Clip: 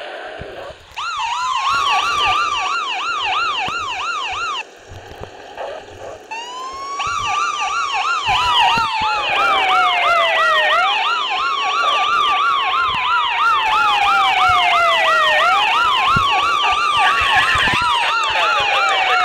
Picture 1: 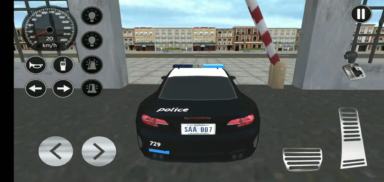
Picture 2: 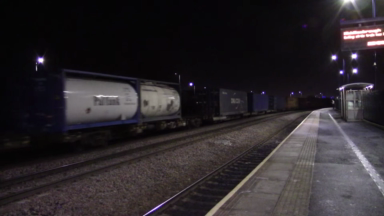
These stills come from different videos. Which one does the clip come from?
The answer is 1